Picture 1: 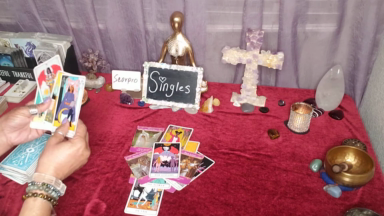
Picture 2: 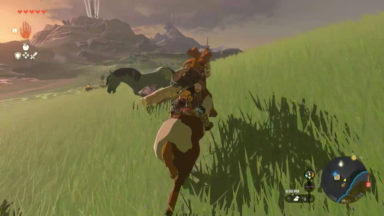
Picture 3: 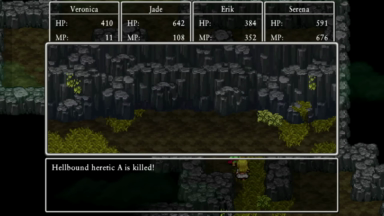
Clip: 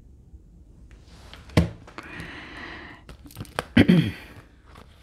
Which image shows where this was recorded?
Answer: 1